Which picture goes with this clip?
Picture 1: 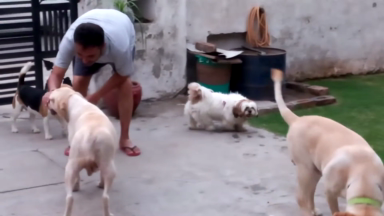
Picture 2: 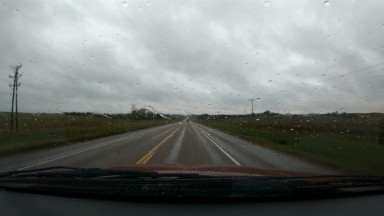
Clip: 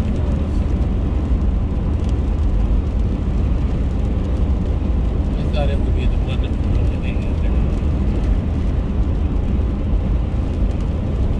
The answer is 2